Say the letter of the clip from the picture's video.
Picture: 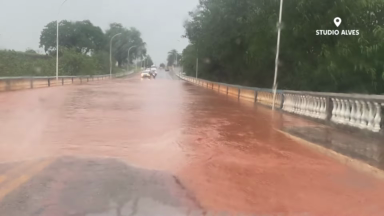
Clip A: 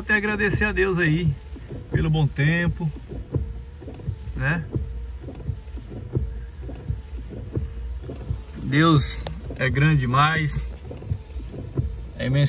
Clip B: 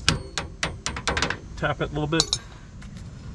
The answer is A